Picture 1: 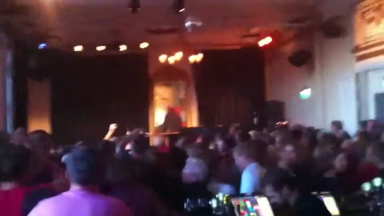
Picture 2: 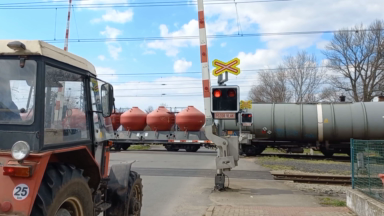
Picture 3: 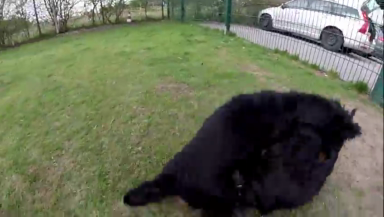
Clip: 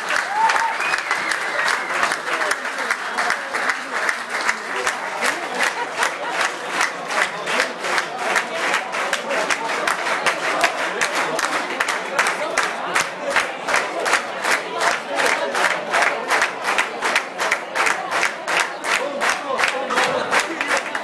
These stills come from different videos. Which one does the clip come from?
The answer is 1